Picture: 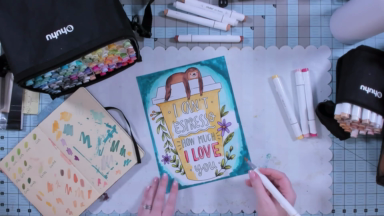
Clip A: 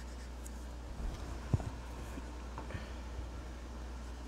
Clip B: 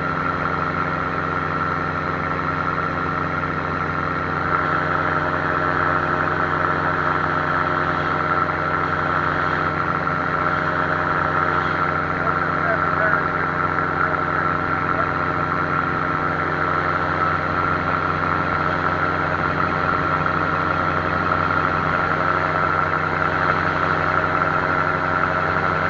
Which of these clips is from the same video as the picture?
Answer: A